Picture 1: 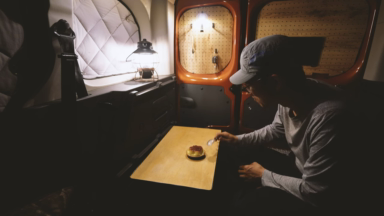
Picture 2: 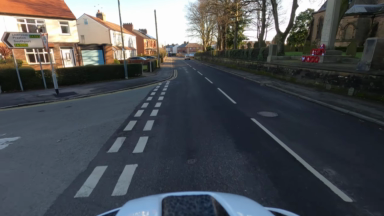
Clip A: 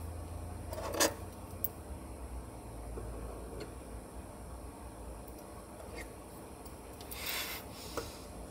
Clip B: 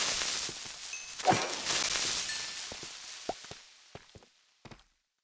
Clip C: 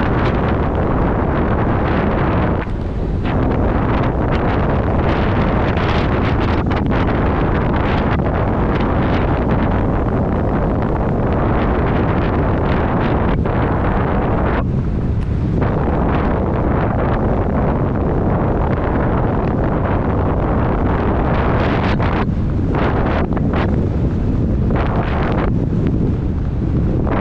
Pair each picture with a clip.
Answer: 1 A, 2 C